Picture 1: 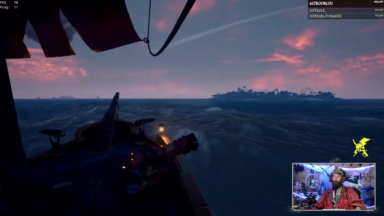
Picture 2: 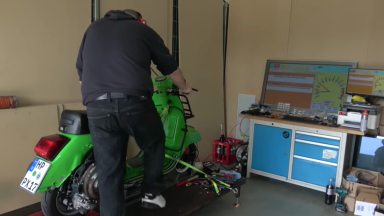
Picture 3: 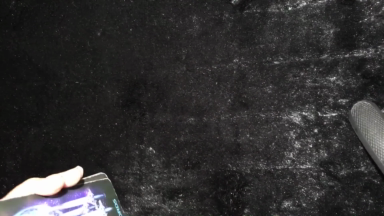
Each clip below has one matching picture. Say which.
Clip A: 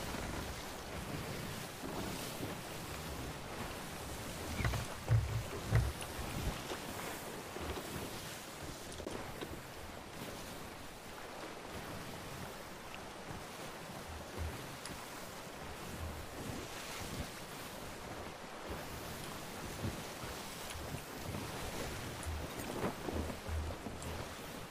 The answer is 1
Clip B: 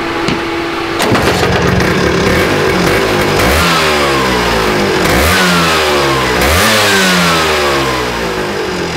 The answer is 2